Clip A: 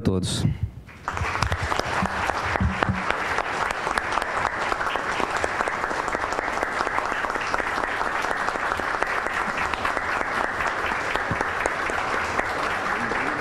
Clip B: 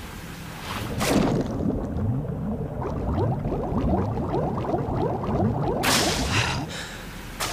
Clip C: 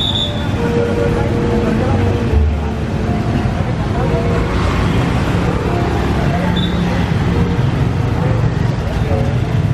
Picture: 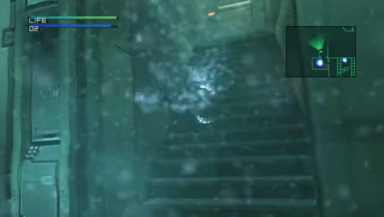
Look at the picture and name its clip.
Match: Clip B